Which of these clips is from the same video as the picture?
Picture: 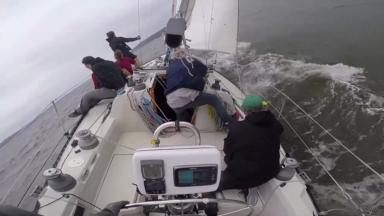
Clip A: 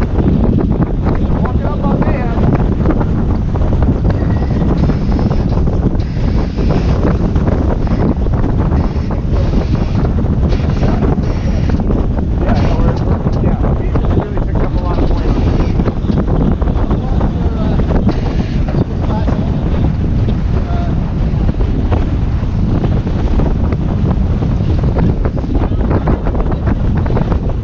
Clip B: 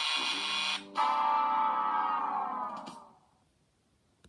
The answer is A